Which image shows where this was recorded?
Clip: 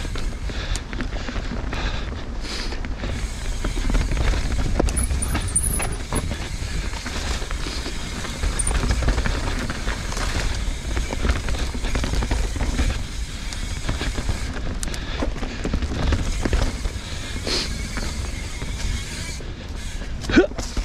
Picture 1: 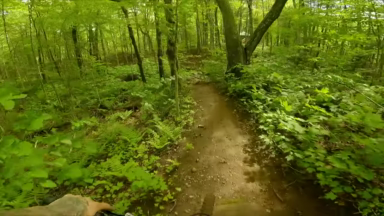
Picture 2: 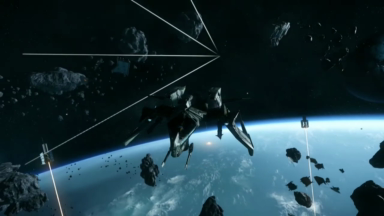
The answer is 1